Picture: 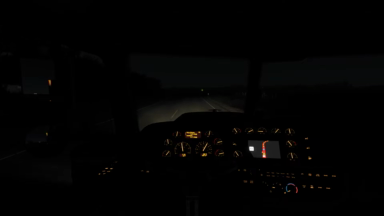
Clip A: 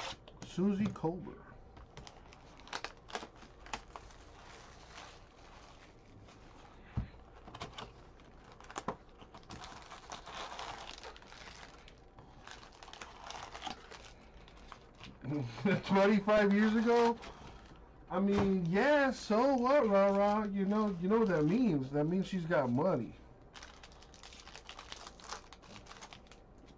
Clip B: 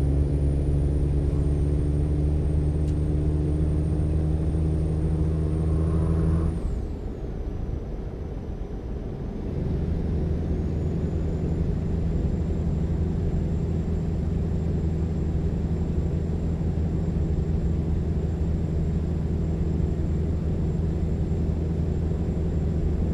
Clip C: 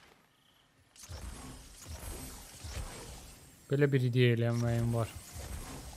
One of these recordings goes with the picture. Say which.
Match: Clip B